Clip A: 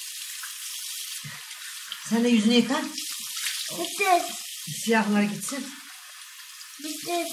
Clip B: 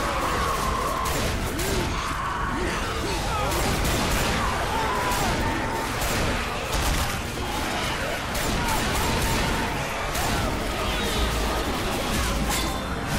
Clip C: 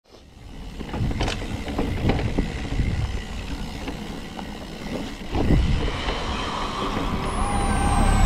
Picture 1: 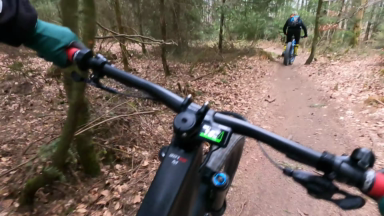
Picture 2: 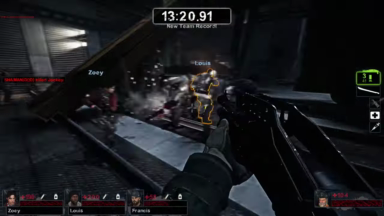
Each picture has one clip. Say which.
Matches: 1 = C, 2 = B